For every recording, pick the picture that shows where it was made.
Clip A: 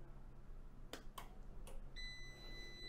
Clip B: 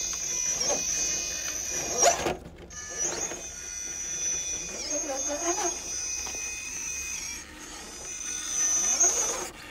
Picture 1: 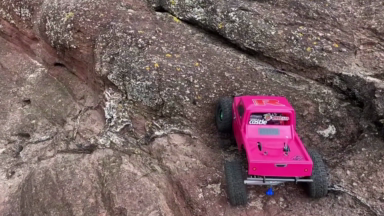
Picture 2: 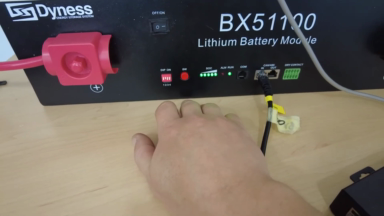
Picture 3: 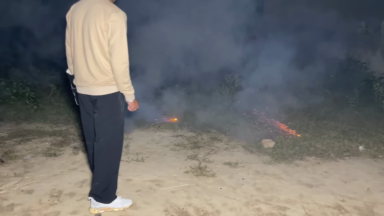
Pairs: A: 2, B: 1